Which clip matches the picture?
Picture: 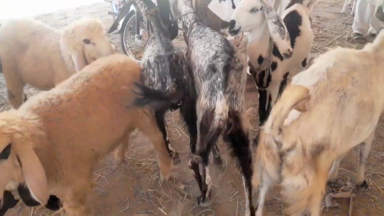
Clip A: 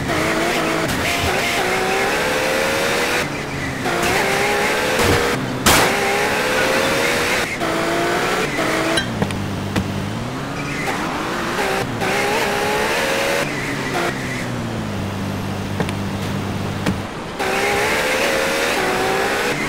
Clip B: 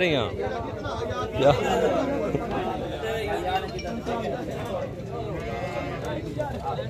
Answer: B